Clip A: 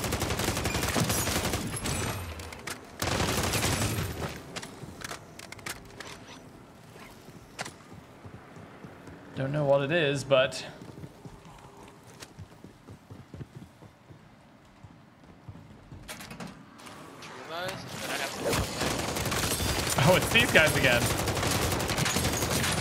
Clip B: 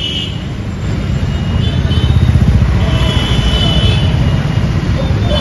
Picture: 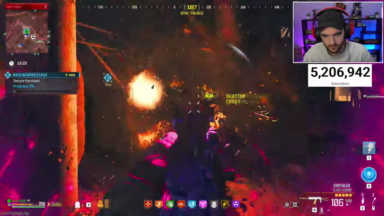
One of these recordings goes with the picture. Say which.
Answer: A